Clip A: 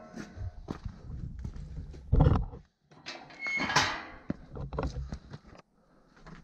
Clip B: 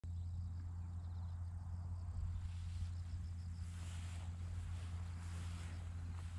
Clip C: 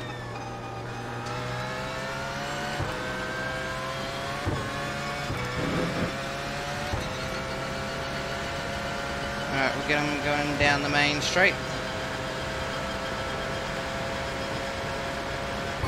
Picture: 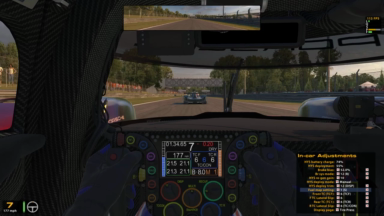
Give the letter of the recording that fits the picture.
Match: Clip C